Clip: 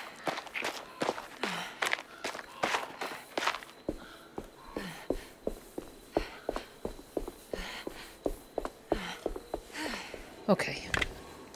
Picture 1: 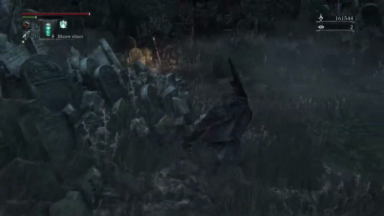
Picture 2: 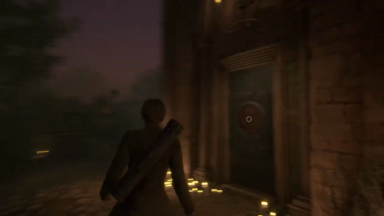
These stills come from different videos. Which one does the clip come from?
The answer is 2